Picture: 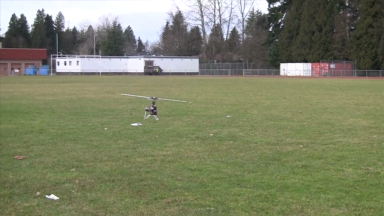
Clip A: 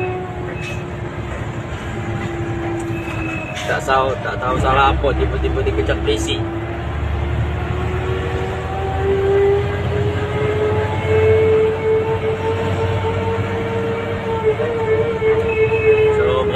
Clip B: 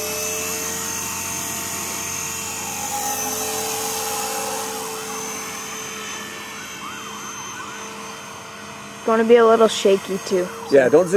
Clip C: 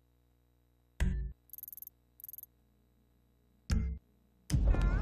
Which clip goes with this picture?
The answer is B